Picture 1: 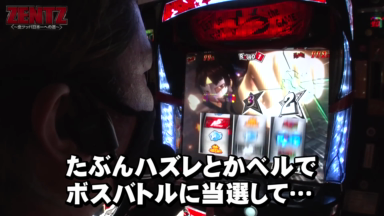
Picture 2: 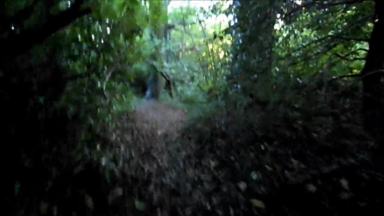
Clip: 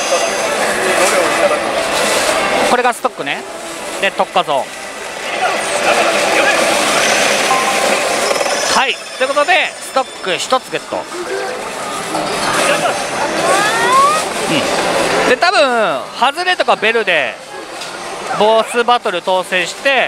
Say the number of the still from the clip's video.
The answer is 1